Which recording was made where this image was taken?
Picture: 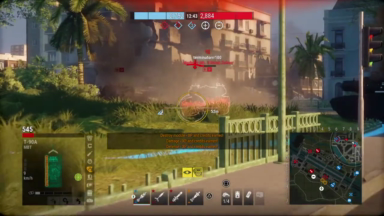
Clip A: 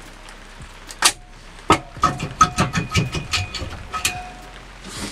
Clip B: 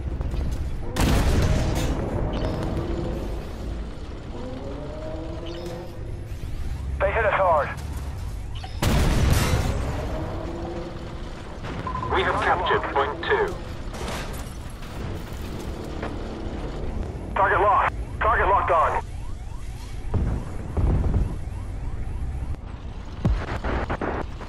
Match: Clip B